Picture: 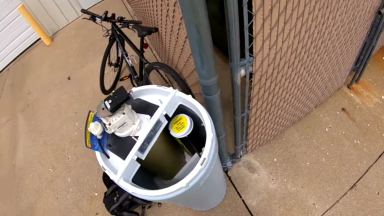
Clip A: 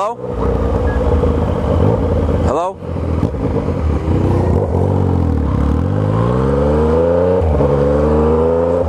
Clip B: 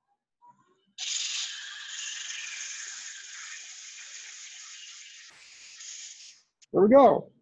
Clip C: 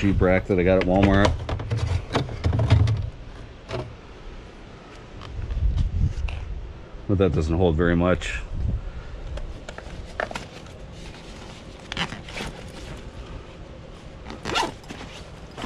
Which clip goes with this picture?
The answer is C